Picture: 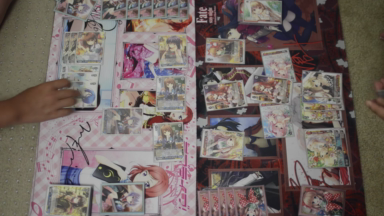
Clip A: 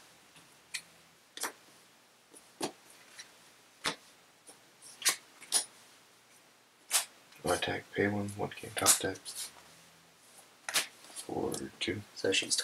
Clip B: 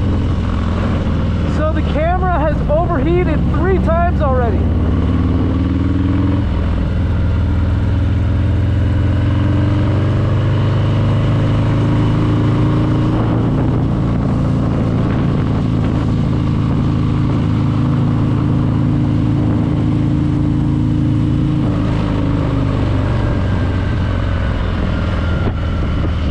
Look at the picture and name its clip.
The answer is A